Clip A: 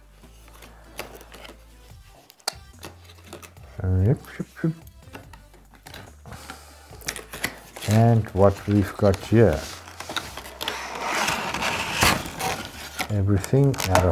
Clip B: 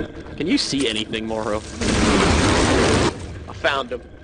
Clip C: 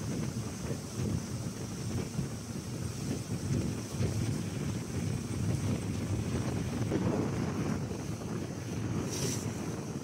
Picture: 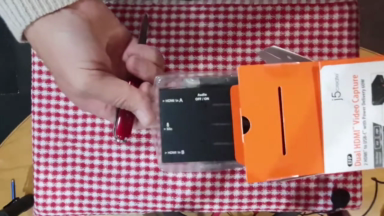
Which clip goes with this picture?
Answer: A